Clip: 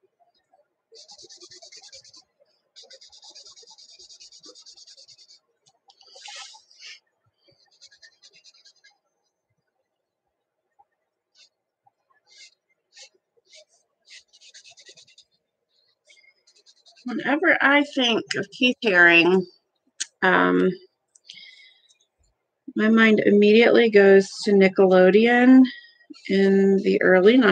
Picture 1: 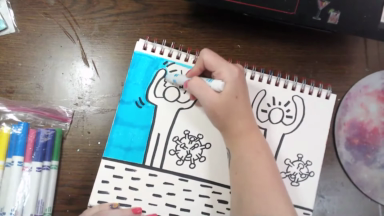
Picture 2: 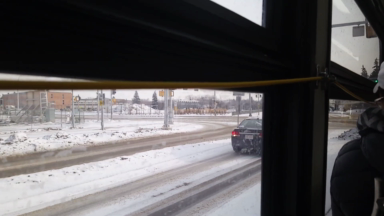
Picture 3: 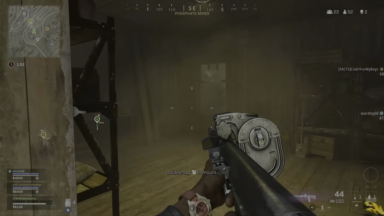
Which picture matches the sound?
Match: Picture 1